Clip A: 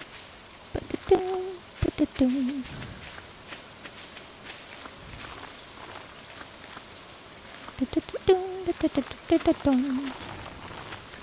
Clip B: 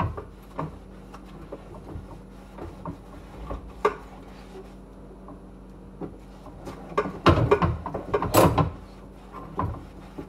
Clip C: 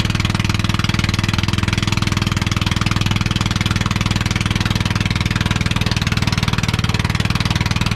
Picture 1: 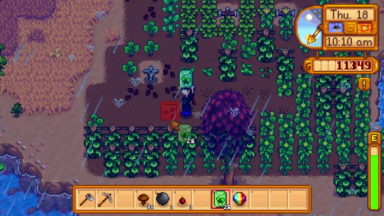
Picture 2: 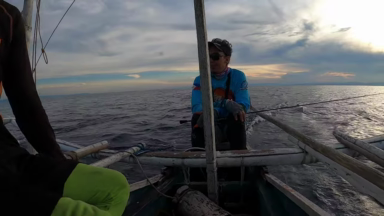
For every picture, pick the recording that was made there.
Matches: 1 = A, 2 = C